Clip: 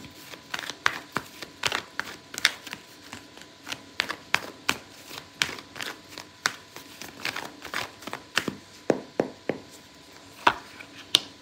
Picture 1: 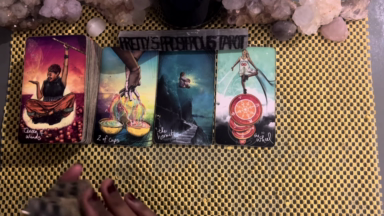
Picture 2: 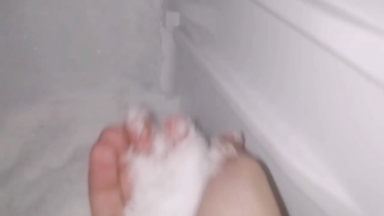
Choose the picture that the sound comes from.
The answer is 1